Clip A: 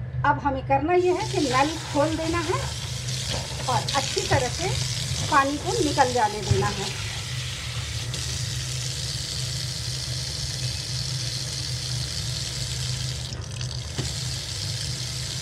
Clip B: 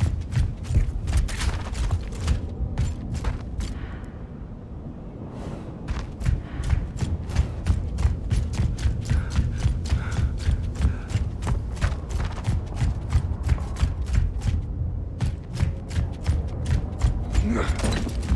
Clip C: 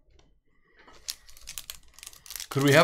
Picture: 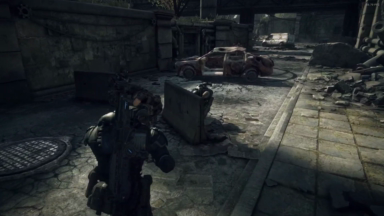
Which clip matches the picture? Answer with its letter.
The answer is B